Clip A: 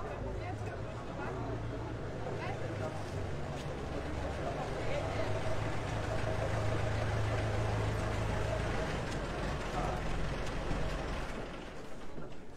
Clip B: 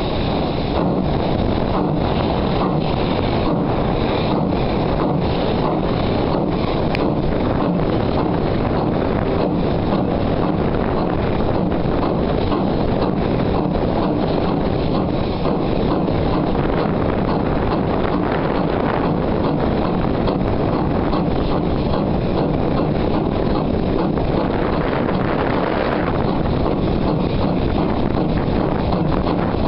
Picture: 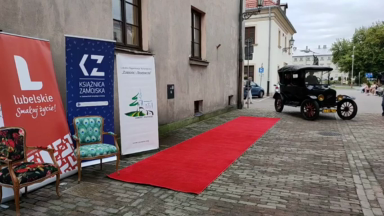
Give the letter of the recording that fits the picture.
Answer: A